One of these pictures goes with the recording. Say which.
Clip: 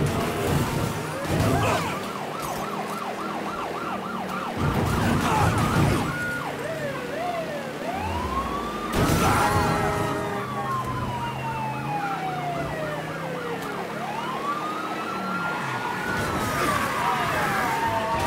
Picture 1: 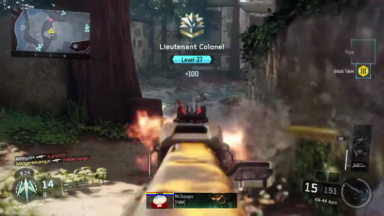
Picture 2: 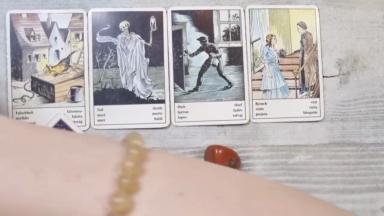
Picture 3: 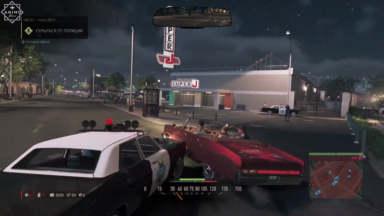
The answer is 3